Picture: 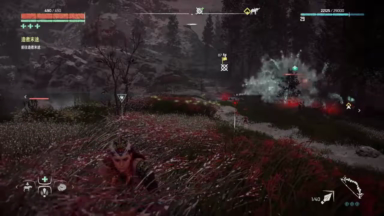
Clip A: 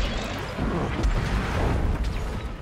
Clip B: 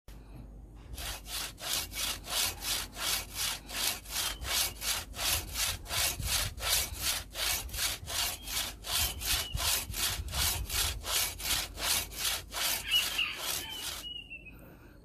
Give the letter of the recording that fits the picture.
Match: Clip A